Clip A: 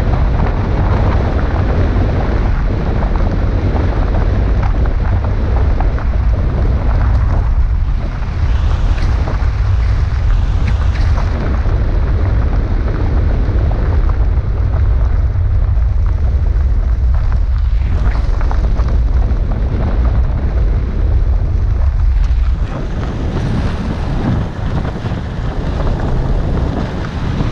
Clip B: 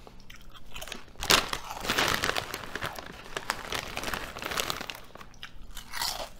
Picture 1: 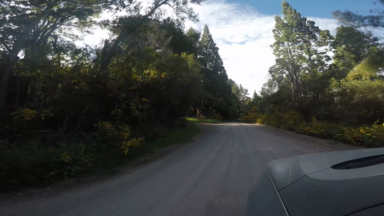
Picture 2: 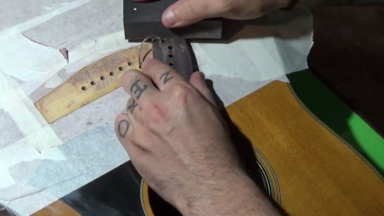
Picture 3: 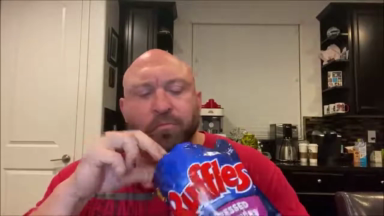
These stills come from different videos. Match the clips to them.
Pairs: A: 1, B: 3